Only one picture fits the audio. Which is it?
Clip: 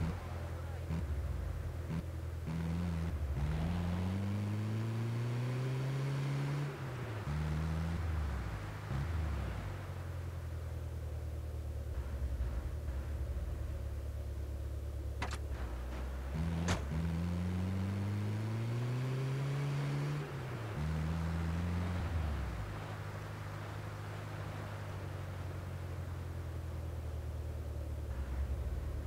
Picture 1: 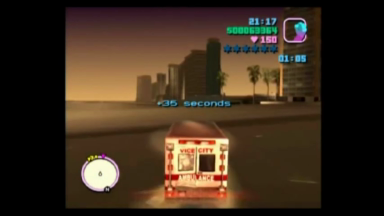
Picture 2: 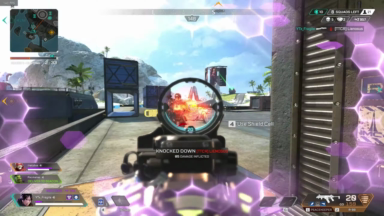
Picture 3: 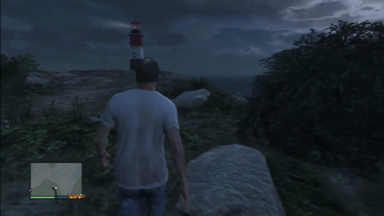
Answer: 1